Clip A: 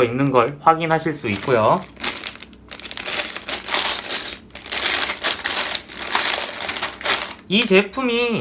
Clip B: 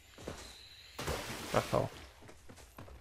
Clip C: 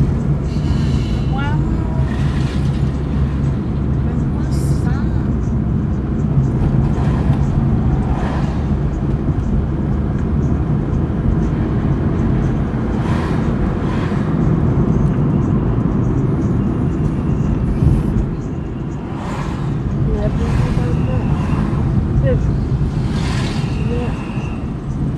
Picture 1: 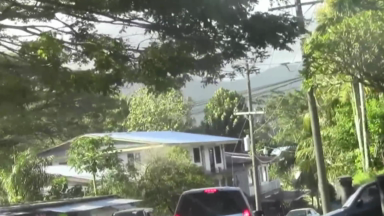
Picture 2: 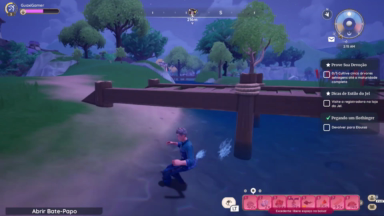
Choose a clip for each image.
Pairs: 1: C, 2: B